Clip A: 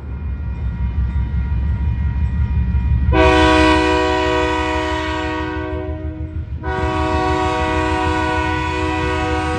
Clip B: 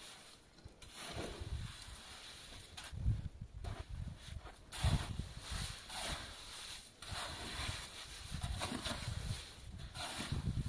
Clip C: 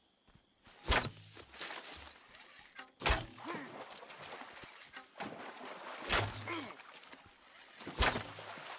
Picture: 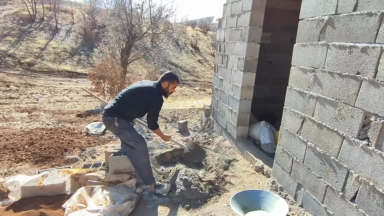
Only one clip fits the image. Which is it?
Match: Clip B